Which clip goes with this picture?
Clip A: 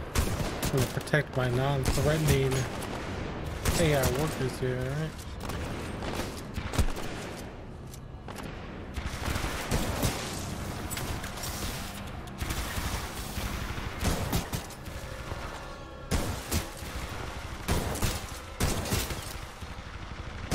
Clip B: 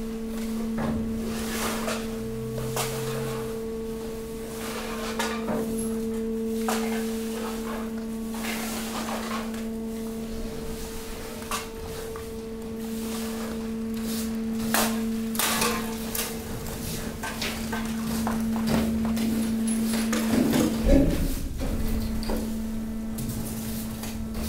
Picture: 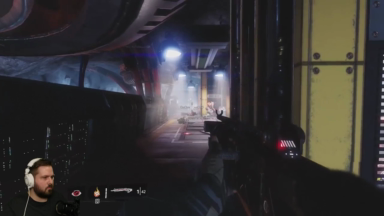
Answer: A